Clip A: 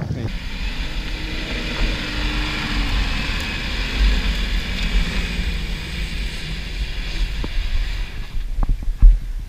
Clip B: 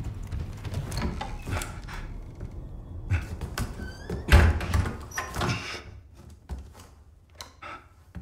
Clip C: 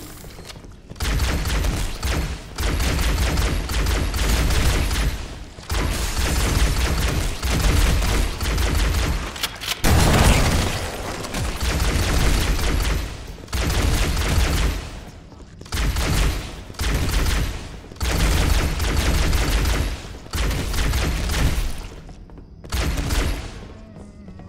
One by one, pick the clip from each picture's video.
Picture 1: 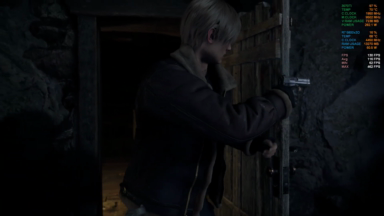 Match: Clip B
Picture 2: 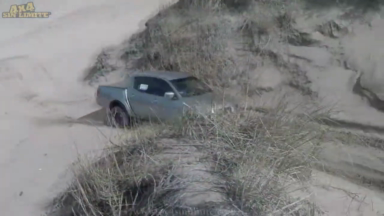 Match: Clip A